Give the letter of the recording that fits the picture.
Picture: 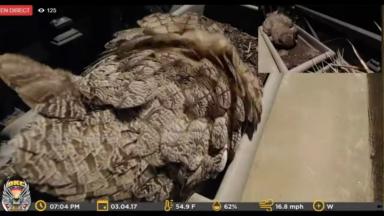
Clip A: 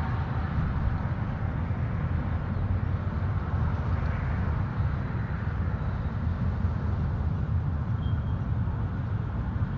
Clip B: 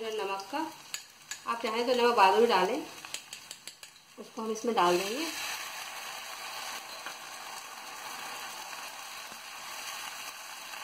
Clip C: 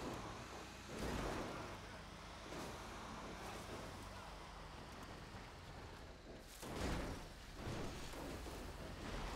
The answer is A